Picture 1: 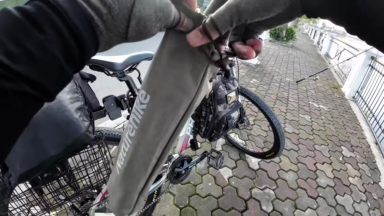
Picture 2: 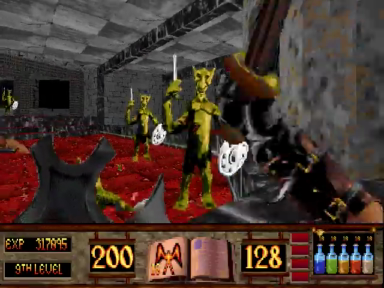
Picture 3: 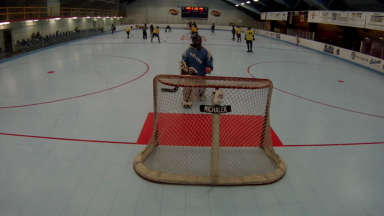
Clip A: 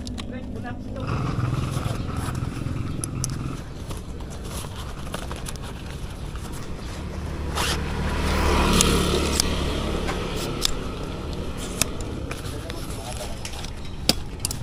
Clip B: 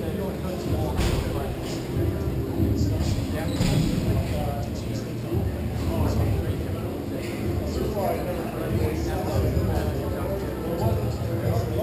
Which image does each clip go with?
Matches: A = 1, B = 3